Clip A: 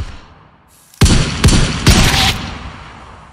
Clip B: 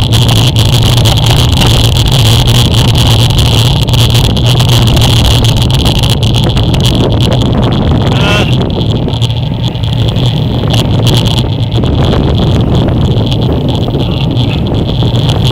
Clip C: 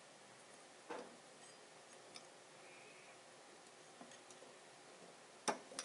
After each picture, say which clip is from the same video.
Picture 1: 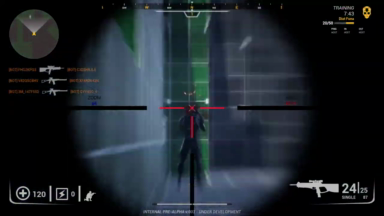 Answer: A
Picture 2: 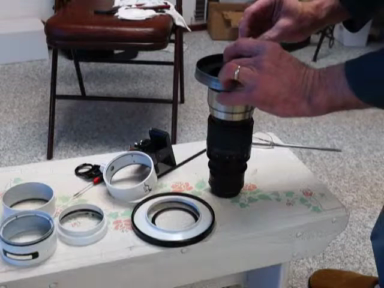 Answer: C